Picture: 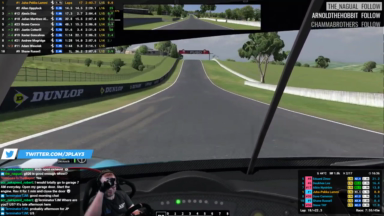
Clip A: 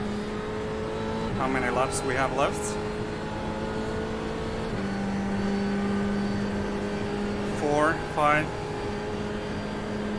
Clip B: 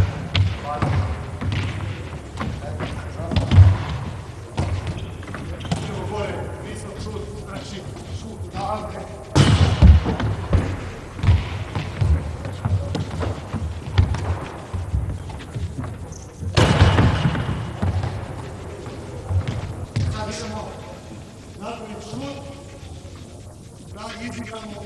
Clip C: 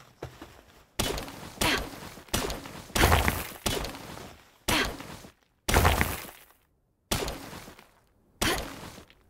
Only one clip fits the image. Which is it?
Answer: A